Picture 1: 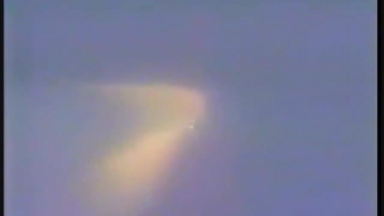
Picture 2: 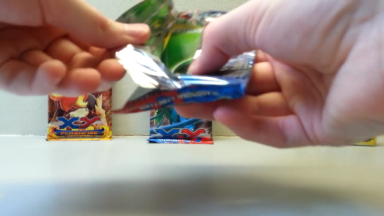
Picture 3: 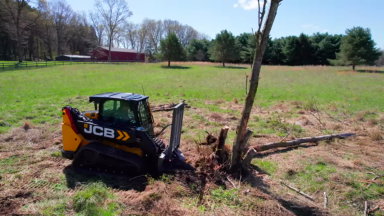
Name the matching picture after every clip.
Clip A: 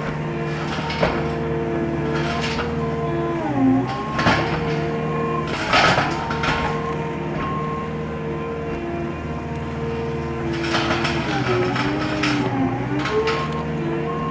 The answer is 3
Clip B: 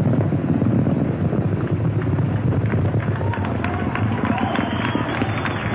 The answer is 1